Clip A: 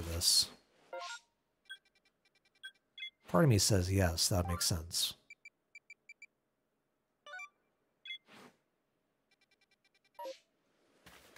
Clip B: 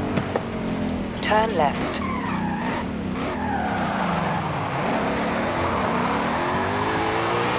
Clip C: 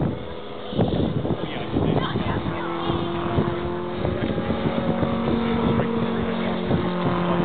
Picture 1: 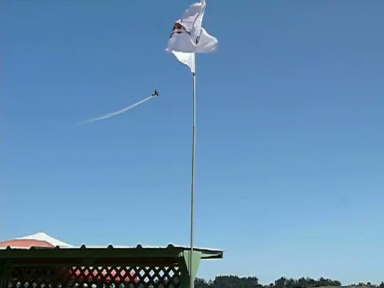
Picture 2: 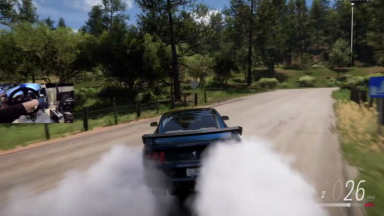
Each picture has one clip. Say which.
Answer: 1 C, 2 B